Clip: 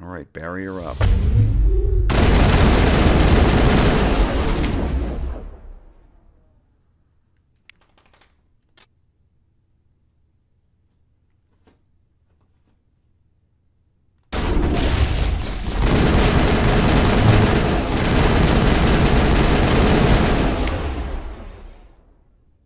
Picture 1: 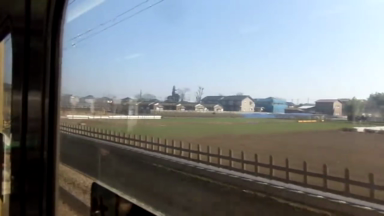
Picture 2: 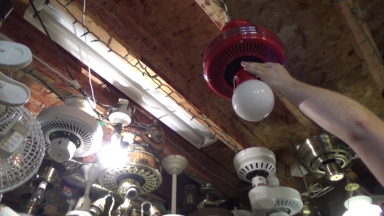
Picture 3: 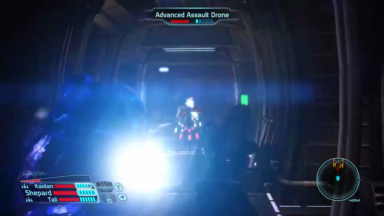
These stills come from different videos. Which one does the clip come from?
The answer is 3